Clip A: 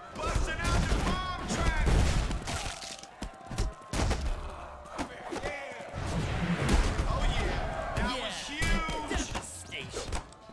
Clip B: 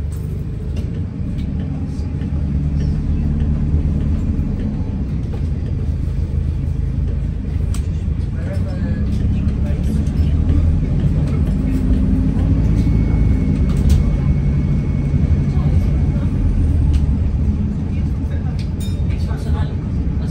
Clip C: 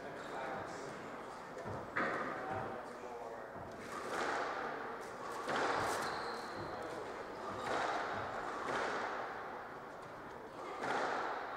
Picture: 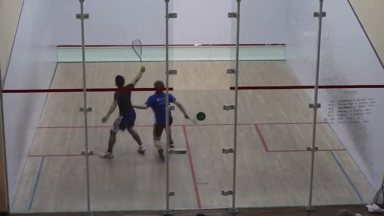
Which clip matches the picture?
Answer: C